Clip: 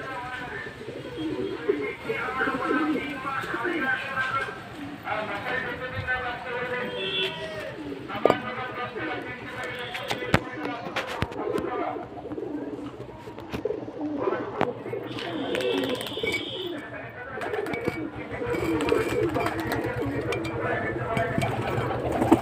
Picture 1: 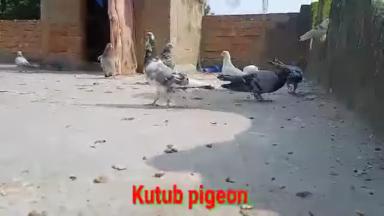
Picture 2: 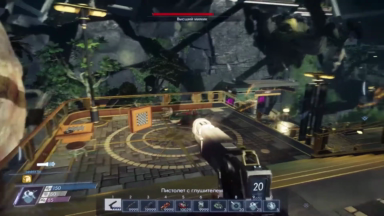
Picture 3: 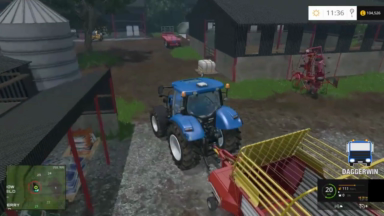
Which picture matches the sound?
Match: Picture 1